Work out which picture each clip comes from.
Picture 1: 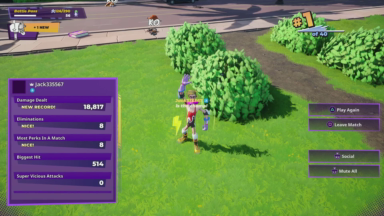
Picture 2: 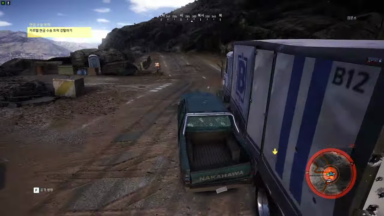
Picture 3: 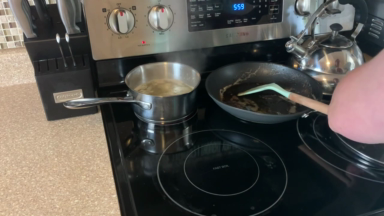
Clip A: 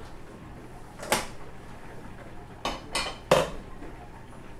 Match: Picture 3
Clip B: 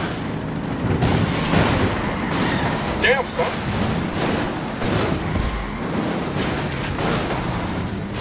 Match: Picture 2